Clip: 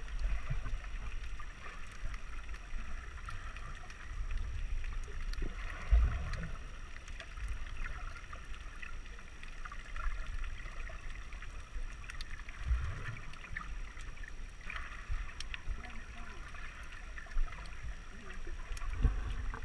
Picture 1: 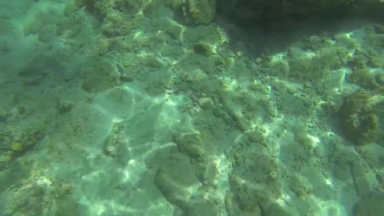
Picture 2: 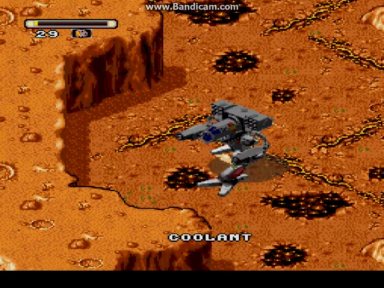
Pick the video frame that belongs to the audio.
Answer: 1